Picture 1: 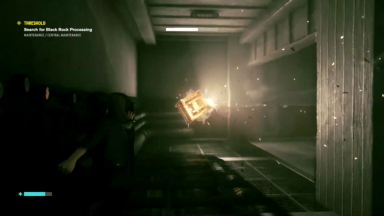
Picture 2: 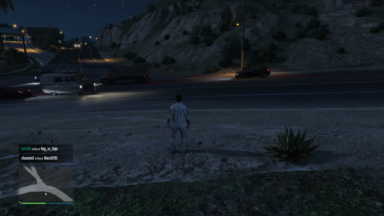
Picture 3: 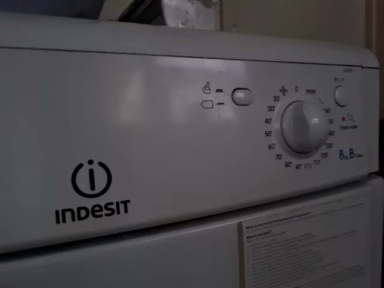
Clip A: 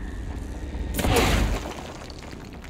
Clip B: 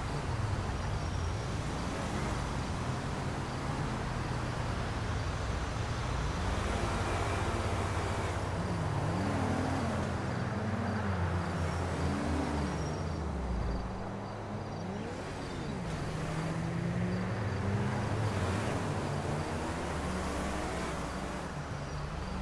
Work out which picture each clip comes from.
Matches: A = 1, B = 2